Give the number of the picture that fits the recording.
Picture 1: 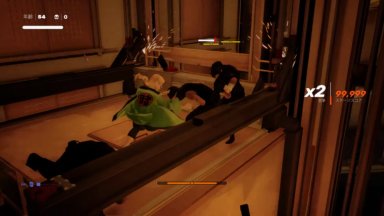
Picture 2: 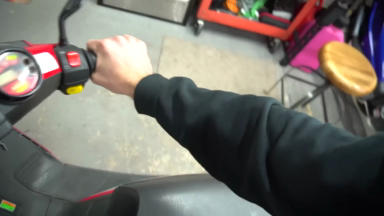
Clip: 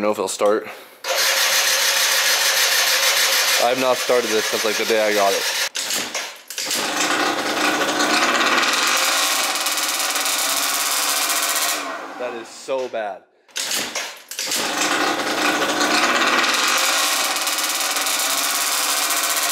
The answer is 2